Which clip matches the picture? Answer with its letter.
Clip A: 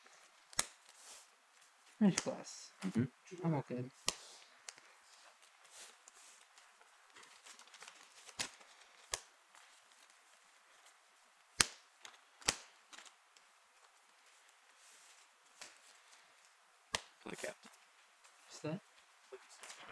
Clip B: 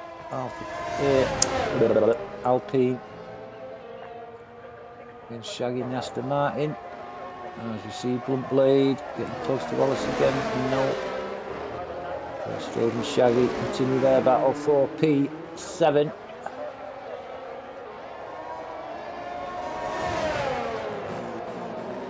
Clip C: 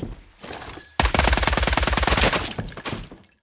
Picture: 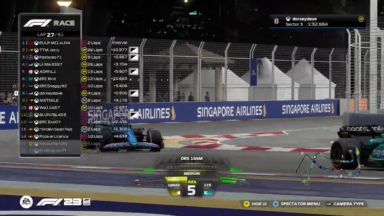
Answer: B